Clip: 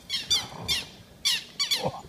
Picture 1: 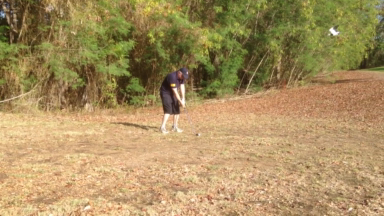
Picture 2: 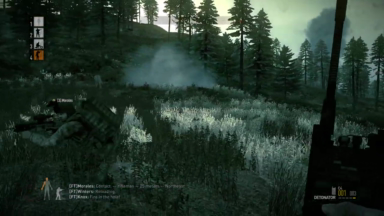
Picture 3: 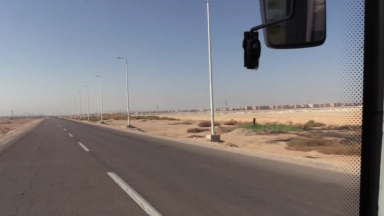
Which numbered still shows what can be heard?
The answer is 1